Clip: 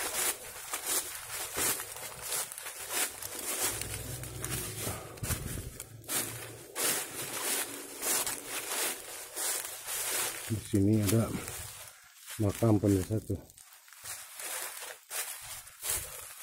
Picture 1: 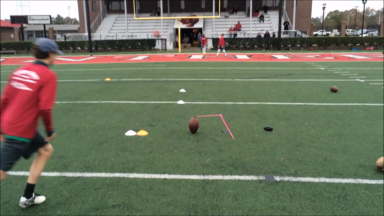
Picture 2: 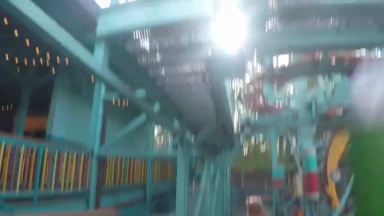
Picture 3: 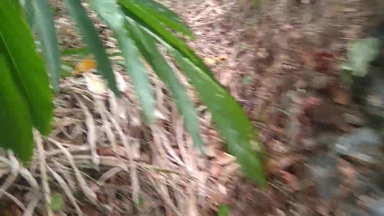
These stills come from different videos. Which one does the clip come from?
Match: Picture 3